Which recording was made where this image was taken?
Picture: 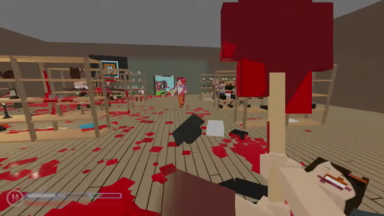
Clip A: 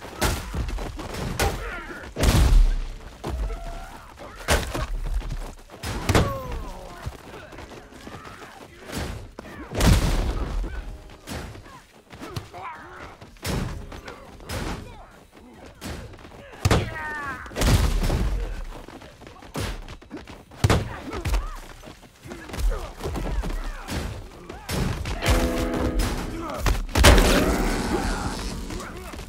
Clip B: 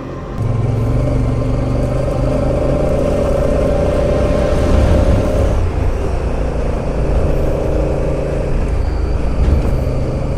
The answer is A